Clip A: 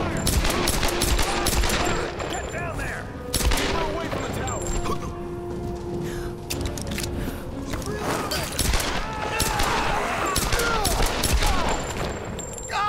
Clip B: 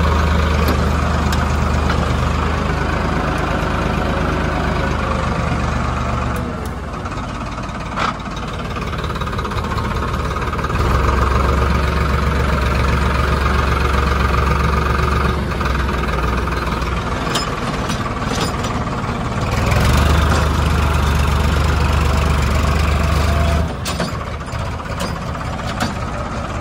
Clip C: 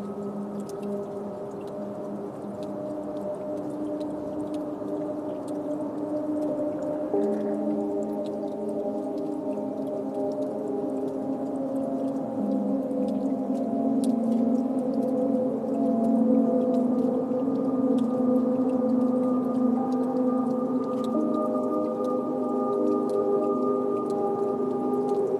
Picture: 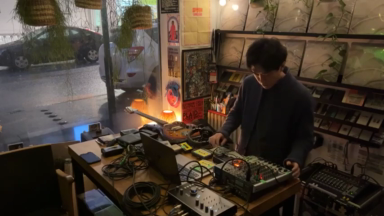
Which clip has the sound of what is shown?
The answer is C